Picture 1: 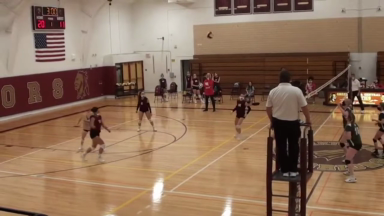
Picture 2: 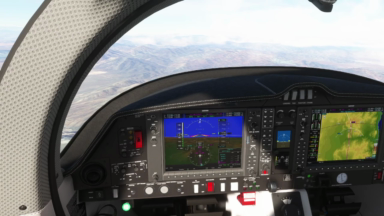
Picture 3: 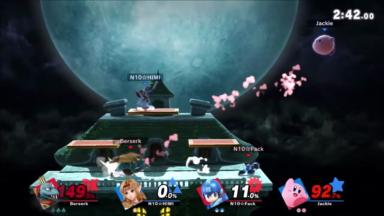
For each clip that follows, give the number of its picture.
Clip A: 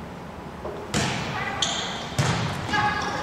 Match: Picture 1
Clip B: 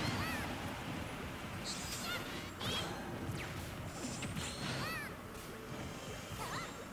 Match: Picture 3